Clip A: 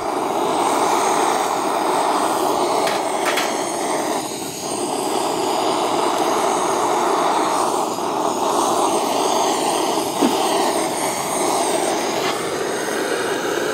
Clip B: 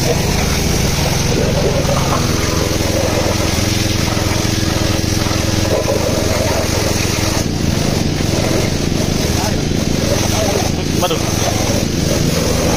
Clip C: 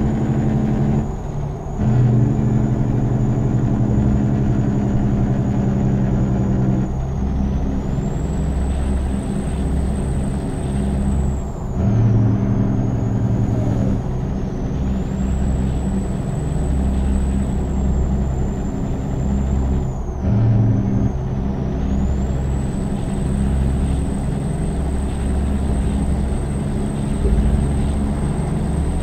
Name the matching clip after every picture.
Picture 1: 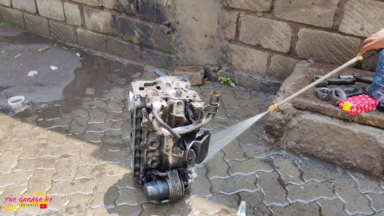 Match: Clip B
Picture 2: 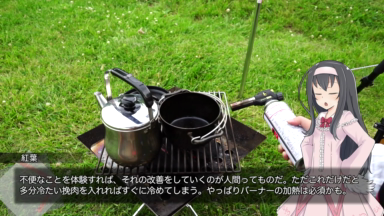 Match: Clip A